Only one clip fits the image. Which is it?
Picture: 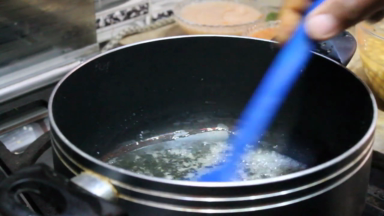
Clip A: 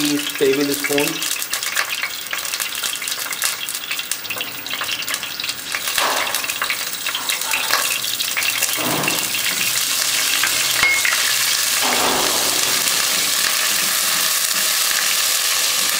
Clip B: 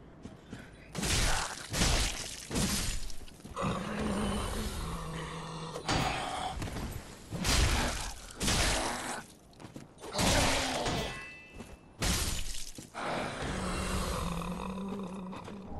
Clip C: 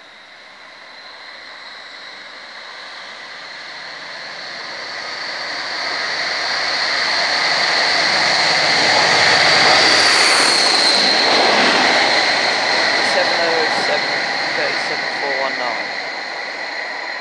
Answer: A